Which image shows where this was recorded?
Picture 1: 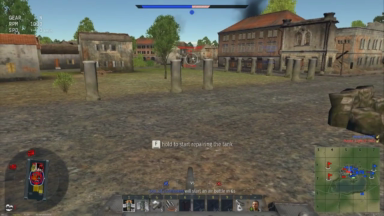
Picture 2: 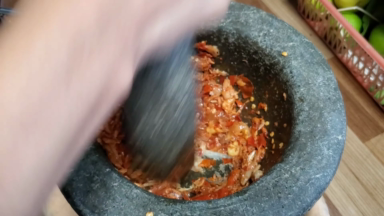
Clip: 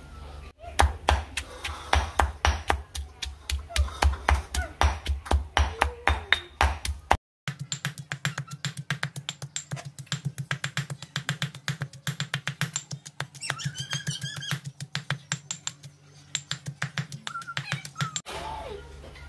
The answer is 2